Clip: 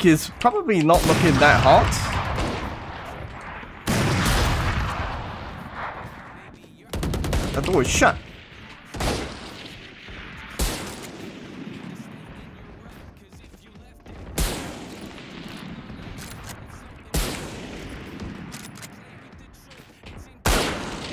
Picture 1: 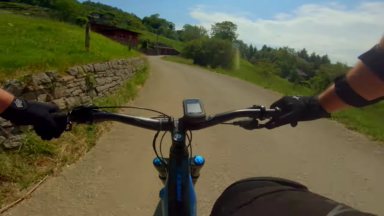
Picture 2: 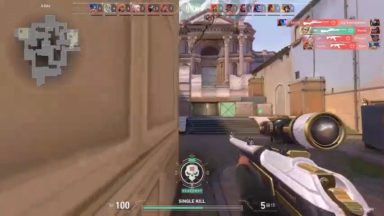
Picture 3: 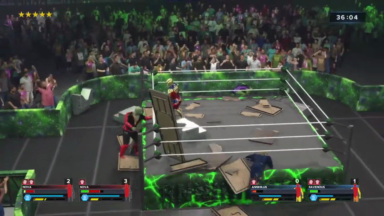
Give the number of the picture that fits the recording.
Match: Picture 2